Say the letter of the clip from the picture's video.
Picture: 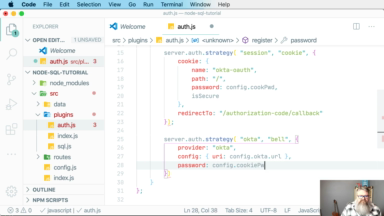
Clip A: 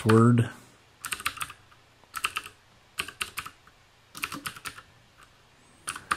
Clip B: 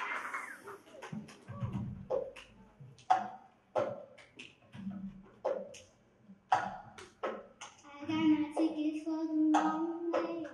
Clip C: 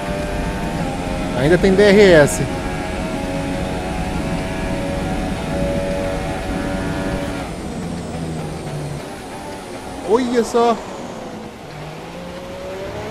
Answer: A